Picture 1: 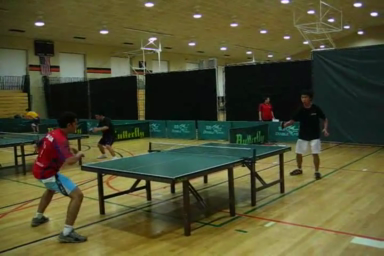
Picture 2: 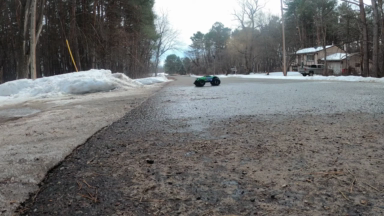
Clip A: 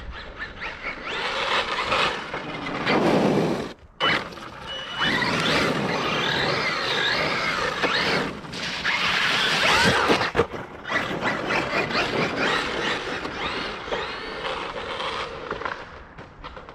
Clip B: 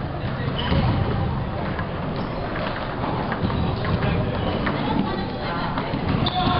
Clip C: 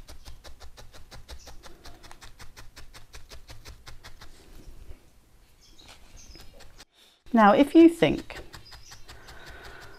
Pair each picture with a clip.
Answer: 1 B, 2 A